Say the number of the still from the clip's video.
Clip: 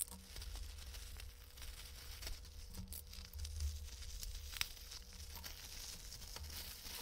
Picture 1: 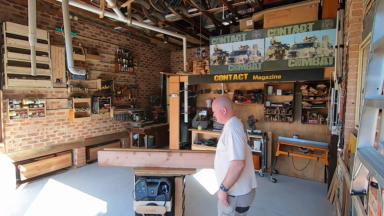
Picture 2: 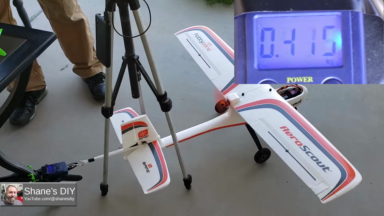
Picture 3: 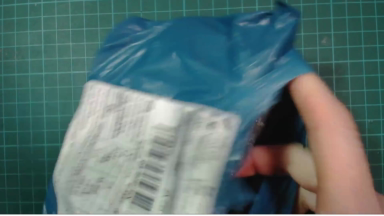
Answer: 3